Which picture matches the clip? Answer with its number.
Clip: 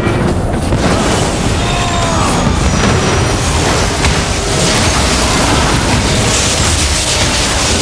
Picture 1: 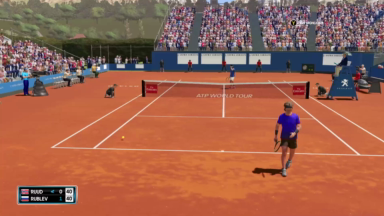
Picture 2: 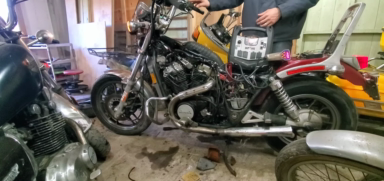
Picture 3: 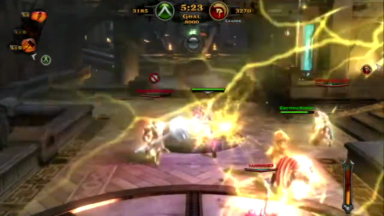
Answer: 3